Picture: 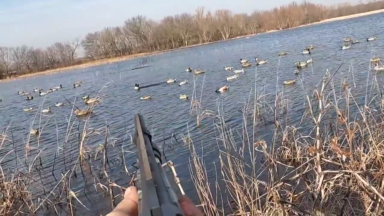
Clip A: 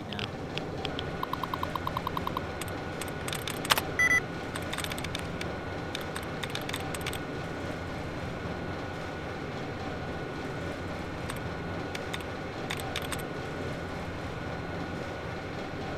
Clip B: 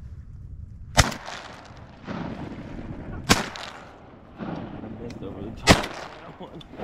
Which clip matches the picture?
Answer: B